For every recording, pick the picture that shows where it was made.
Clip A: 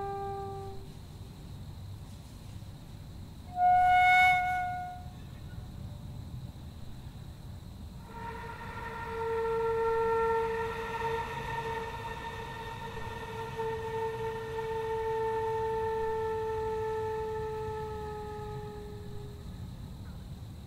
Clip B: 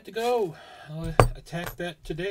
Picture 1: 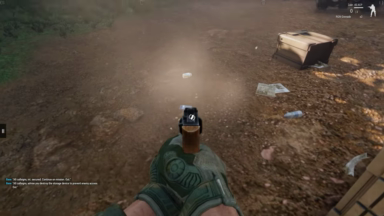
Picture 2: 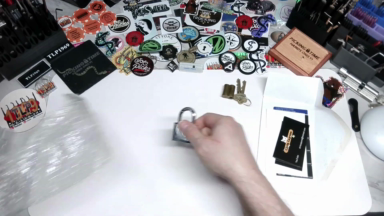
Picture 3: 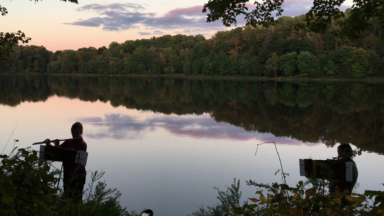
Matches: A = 3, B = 2